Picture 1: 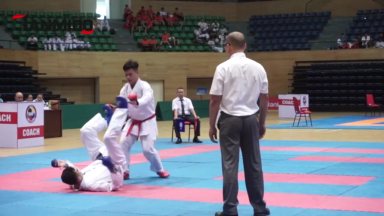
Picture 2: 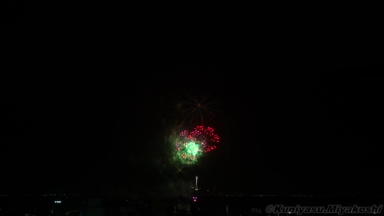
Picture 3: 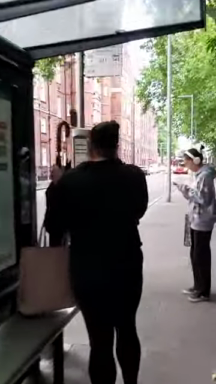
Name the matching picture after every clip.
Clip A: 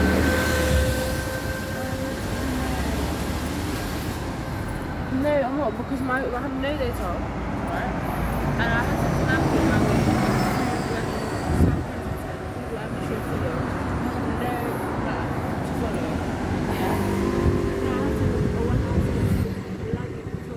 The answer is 3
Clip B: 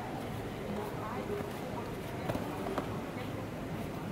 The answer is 1